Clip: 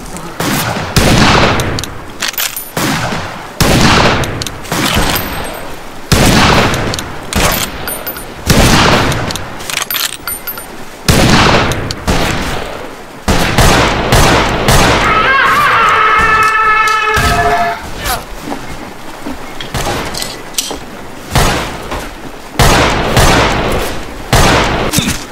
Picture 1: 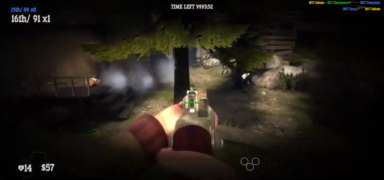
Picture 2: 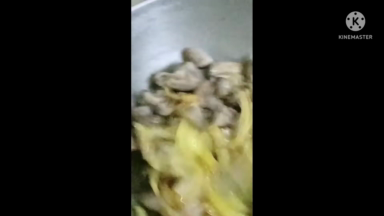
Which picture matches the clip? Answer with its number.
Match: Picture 1